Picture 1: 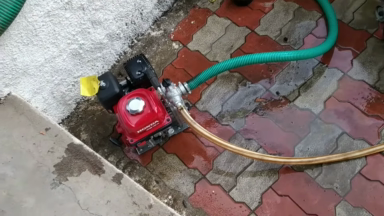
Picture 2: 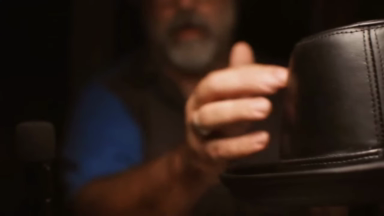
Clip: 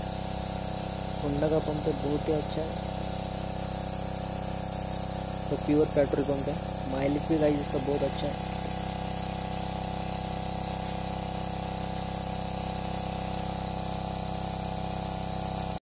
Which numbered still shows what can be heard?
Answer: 1